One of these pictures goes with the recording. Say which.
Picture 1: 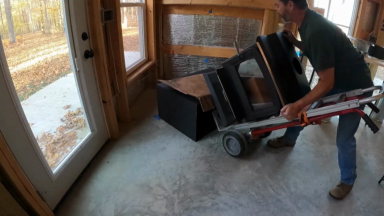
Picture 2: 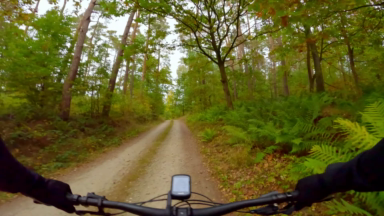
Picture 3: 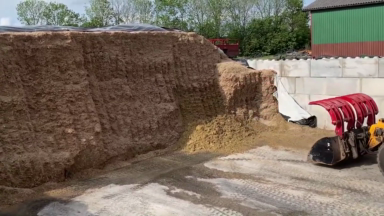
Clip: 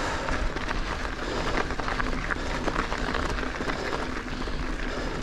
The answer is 2